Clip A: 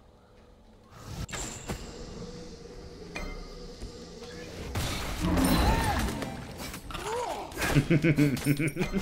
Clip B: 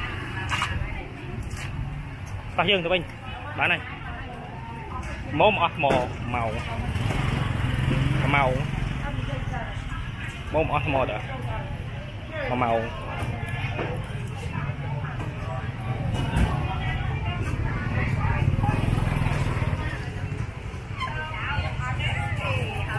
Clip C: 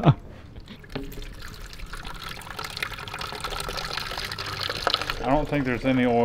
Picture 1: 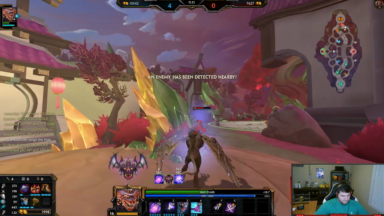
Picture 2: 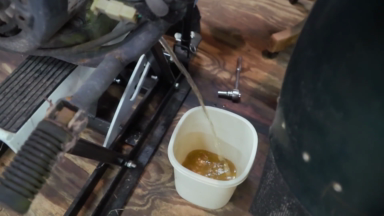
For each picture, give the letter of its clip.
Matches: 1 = A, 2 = C